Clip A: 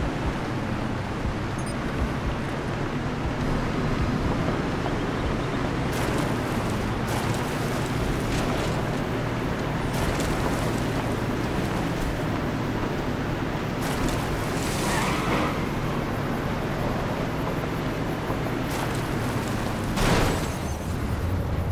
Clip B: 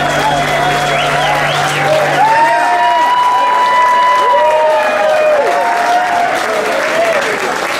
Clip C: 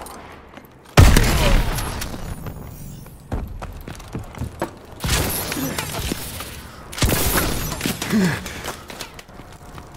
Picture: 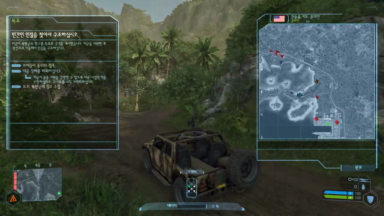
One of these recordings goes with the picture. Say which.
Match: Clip A